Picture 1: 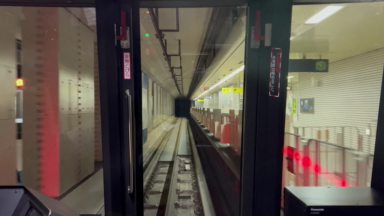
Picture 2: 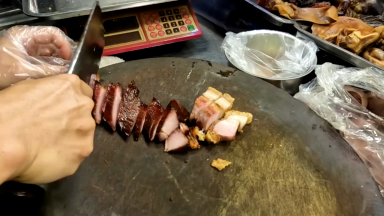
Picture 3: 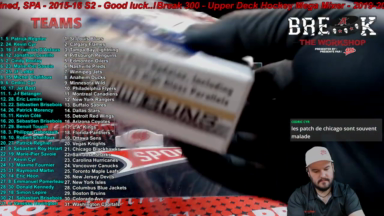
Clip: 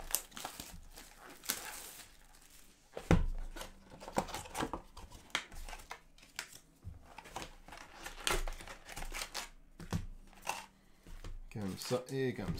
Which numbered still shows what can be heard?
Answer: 3